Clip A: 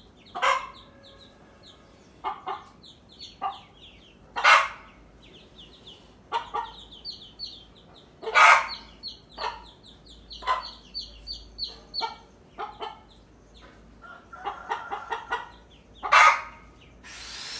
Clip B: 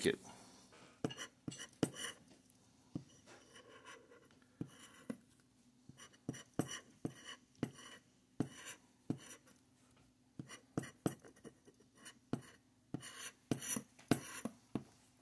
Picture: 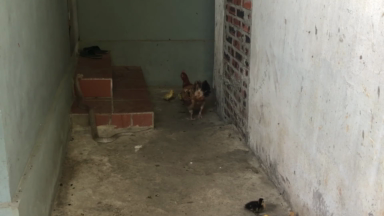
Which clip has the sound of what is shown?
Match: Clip A